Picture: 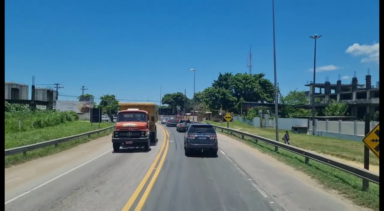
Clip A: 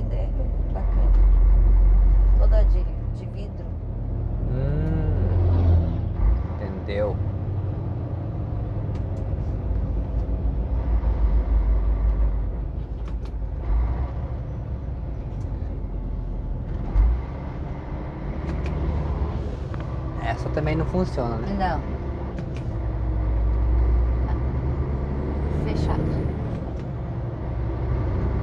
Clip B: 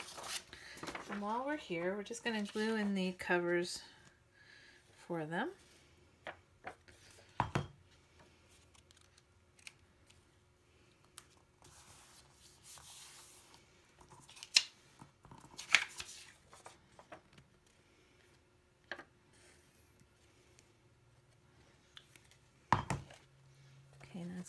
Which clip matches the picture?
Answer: A